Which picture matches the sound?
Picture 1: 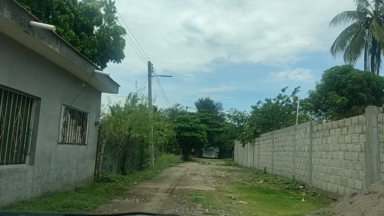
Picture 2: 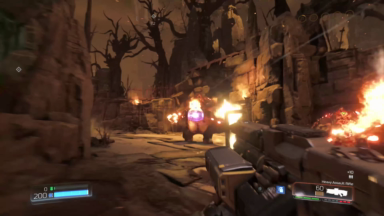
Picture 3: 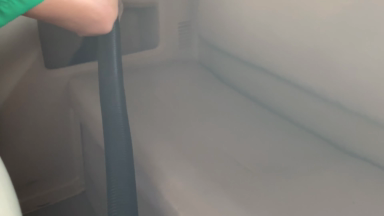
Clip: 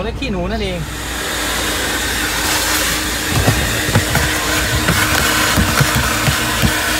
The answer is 3